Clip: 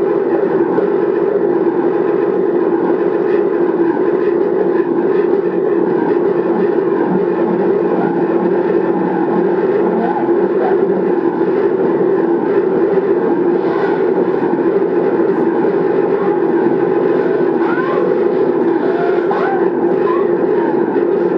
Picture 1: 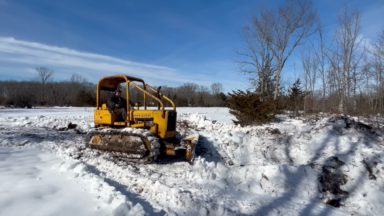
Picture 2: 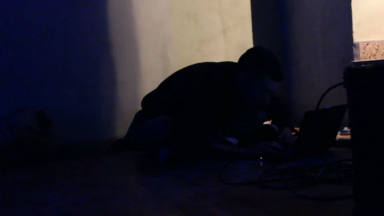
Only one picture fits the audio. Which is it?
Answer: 2